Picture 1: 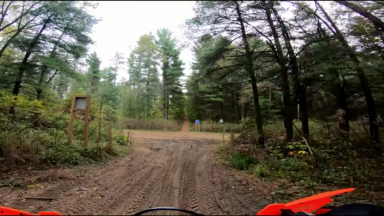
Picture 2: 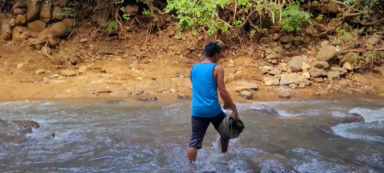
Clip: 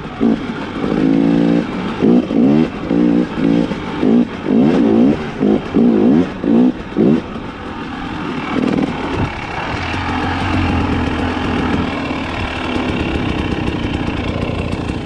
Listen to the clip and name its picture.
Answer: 1